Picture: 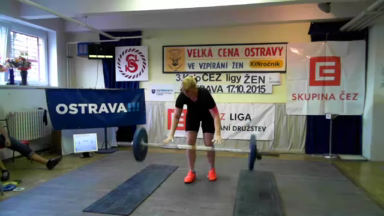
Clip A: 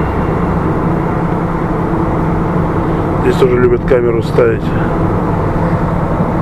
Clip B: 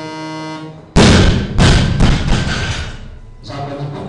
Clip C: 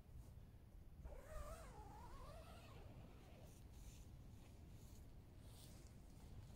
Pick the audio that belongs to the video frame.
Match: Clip B